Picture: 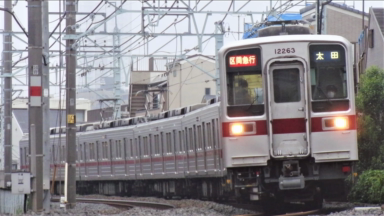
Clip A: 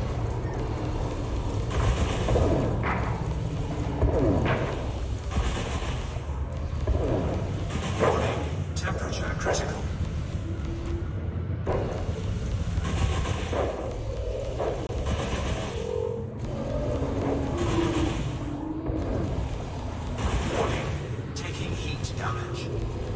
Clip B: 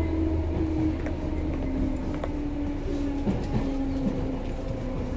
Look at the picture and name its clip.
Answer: B